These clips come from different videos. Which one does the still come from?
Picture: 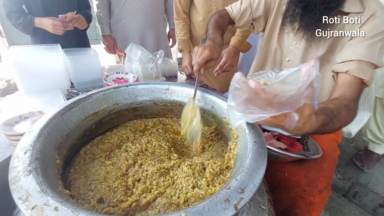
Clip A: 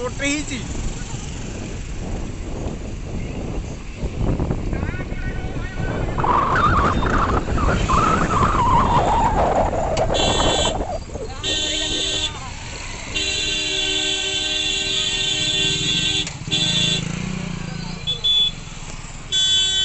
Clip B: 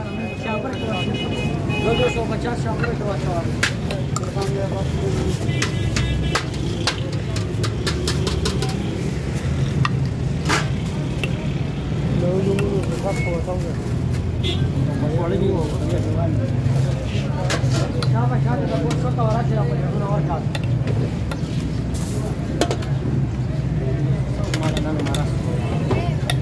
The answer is B